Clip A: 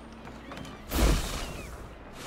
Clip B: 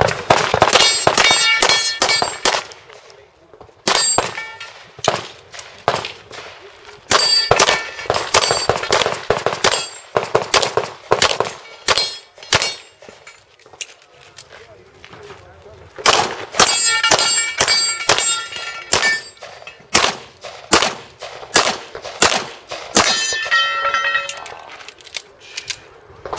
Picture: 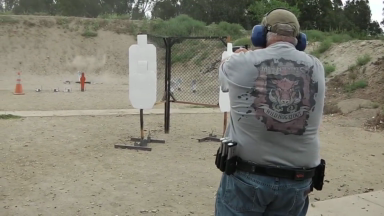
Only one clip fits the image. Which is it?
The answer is B